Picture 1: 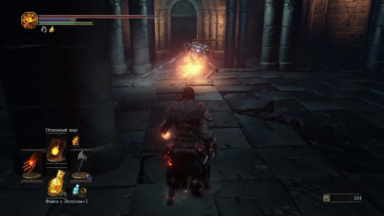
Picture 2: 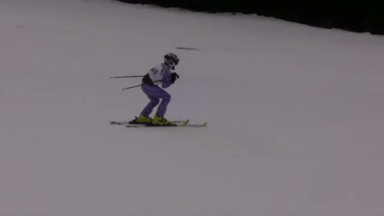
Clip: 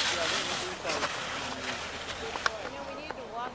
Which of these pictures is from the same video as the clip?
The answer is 2